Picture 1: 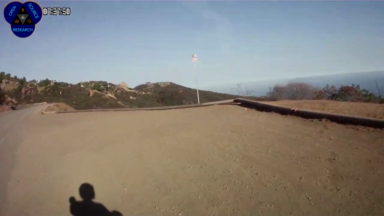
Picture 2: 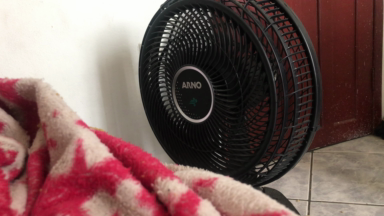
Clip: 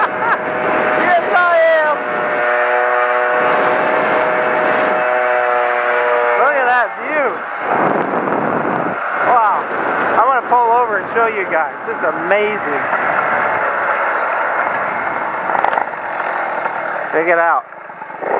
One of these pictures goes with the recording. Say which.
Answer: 1